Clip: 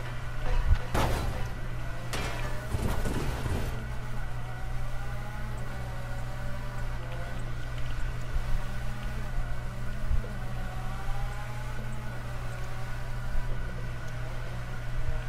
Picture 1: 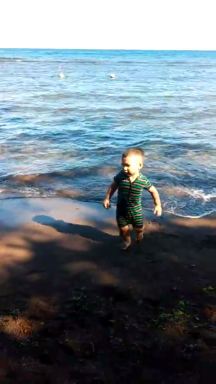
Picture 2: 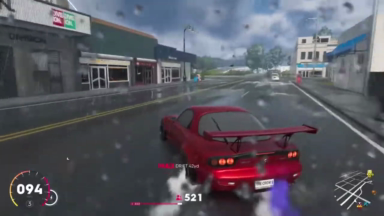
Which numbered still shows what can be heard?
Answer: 2